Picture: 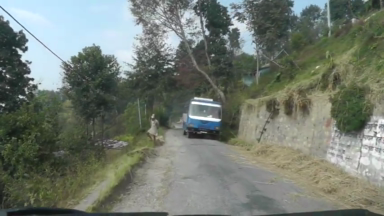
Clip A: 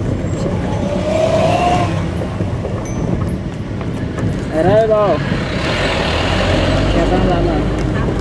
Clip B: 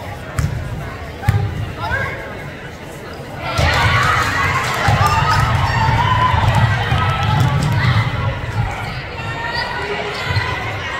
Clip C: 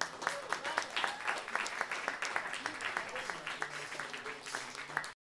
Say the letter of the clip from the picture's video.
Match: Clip A